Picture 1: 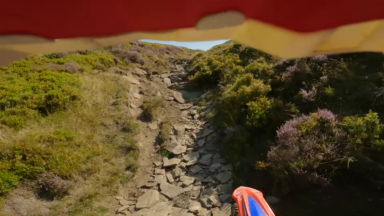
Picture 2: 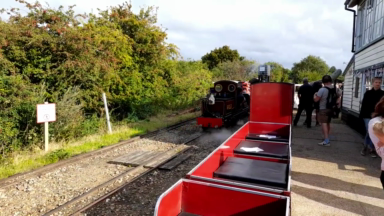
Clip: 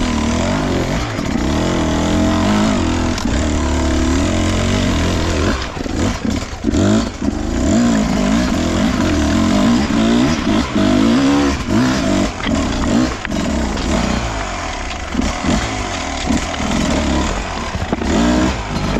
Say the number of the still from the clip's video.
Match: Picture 1